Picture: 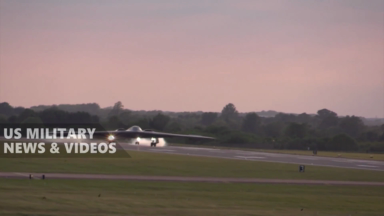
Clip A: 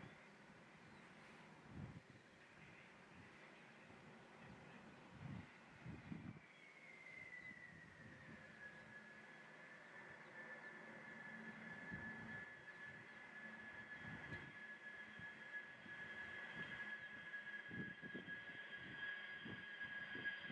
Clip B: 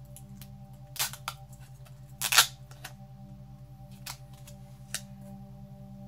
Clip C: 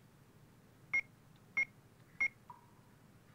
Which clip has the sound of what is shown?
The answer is A